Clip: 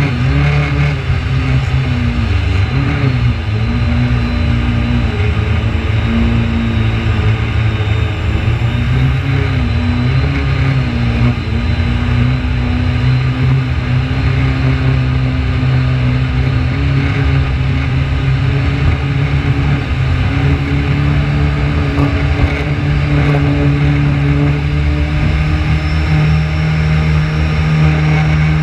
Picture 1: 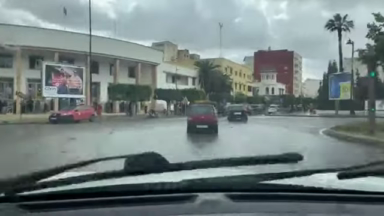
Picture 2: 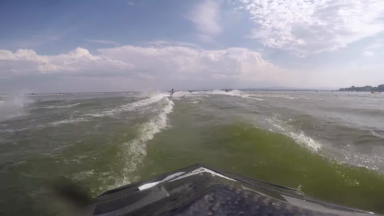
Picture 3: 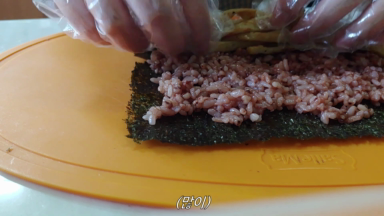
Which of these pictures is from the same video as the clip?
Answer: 2